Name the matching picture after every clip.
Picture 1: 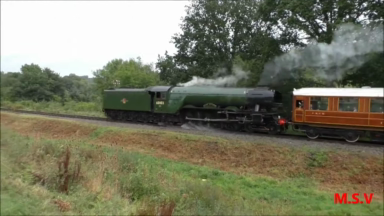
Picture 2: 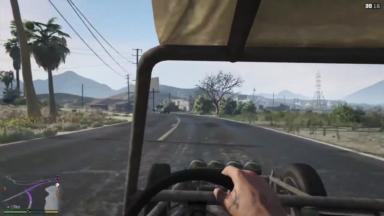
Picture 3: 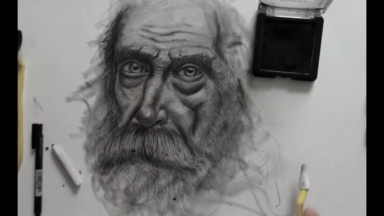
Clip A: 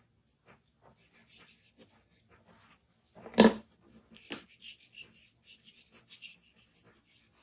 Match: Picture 3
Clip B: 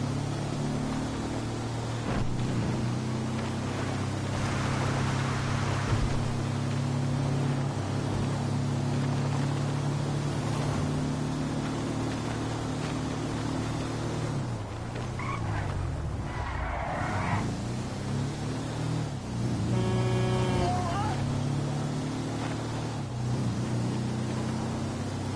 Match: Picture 2